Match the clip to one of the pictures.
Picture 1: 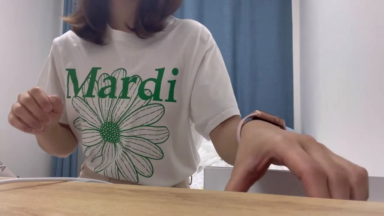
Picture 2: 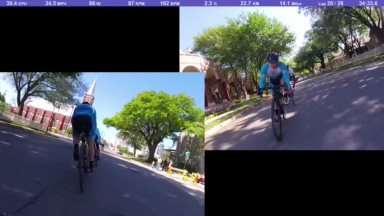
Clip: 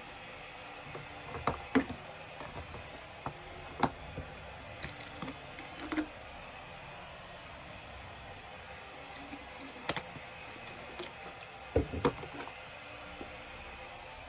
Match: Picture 1